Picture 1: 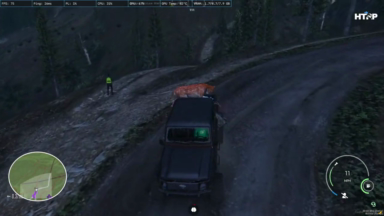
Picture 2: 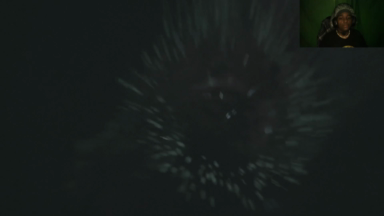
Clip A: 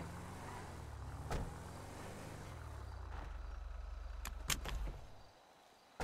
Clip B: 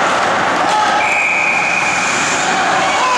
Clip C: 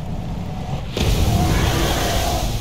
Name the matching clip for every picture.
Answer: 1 A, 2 C